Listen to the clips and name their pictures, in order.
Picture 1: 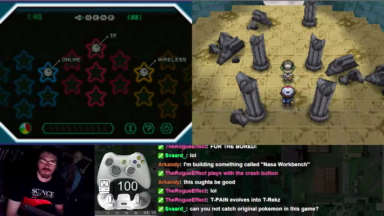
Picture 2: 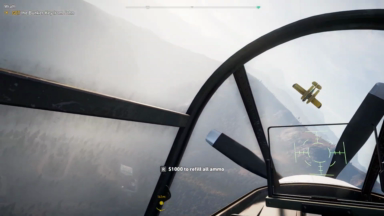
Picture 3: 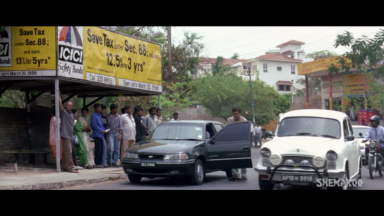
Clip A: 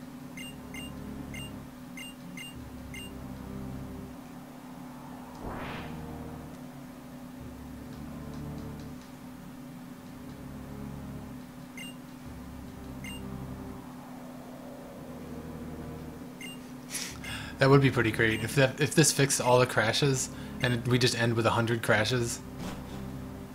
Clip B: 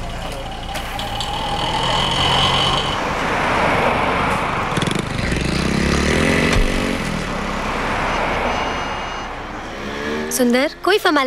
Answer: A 1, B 3